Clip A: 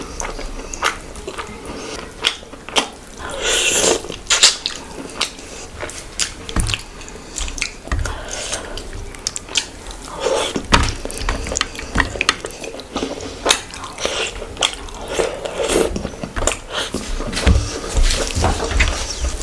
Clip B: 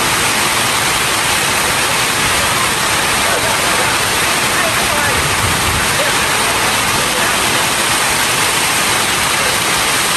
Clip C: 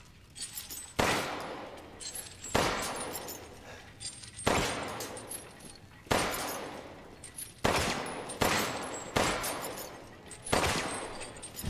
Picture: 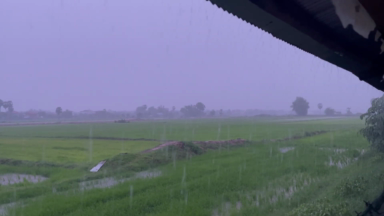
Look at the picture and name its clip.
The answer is B